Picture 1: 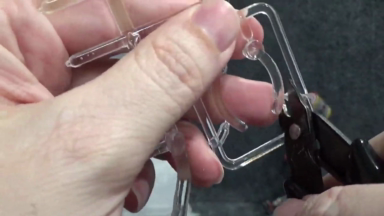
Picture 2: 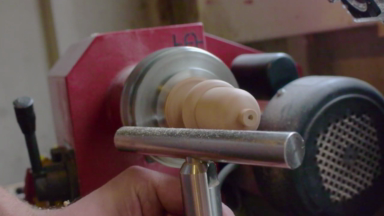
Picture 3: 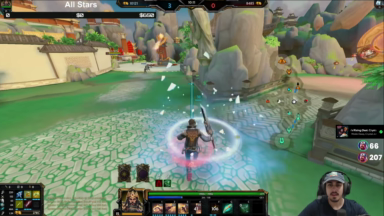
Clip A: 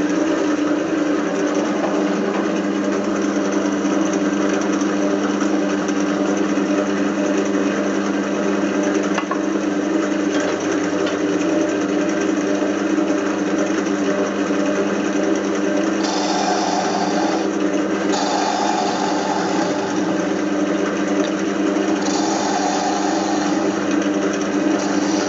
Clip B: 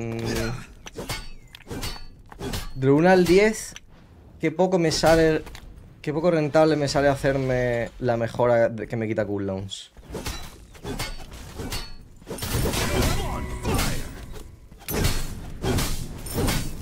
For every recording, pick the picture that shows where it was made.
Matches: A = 2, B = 3